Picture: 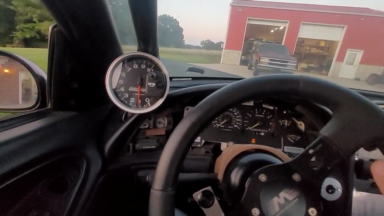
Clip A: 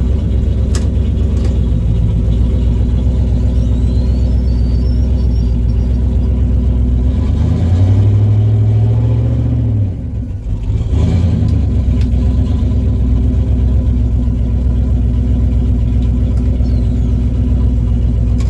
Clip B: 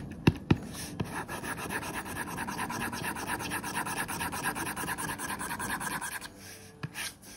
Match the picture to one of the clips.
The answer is A